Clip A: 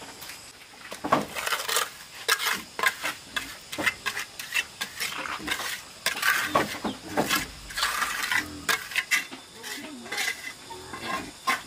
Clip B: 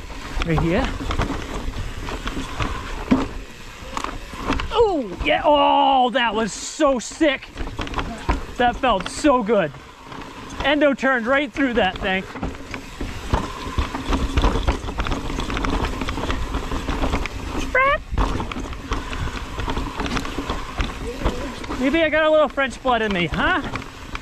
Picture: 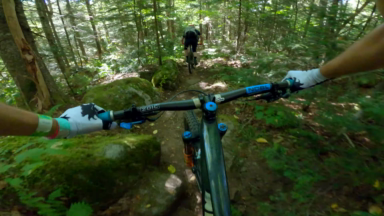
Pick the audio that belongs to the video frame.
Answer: B